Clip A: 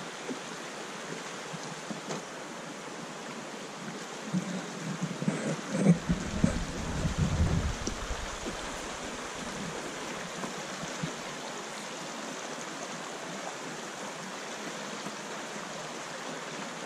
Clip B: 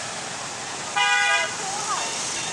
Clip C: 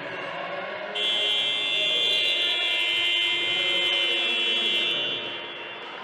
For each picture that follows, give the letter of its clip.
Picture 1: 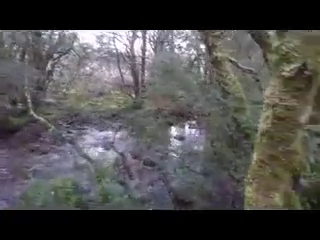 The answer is A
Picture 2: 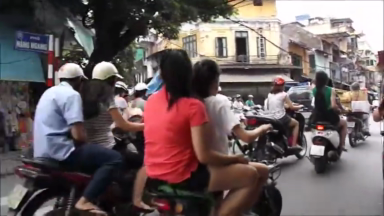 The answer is B